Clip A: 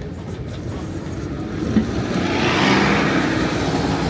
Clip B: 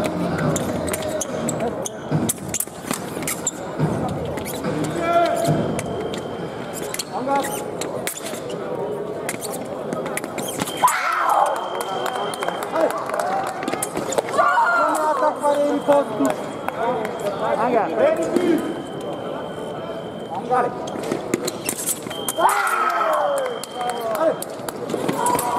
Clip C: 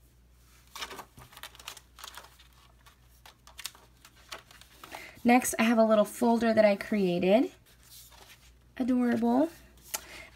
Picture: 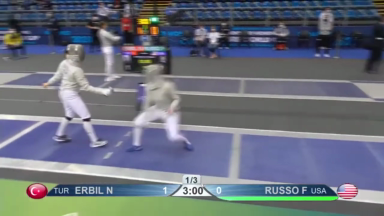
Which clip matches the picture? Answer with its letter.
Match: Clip B